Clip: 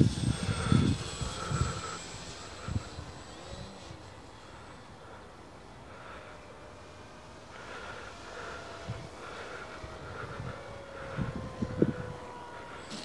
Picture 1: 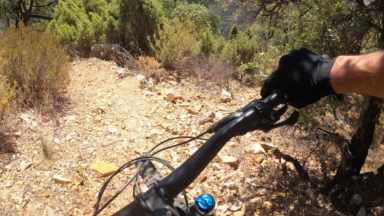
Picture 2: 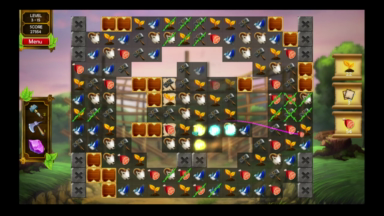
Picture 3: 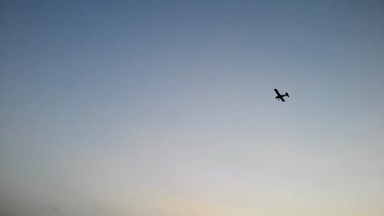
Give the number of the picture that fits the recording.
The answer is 3